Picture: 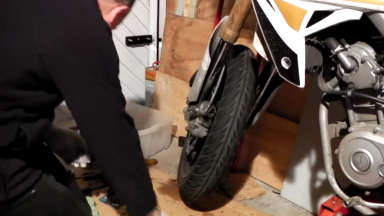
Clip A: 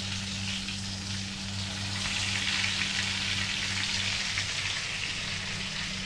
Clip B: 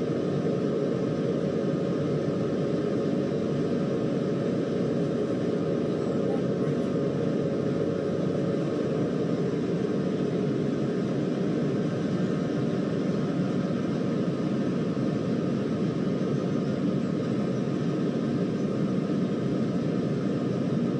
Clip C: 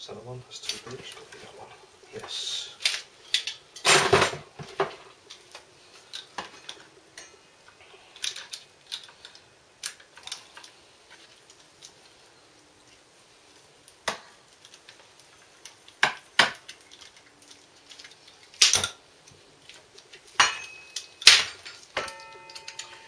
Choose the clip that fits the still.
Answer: C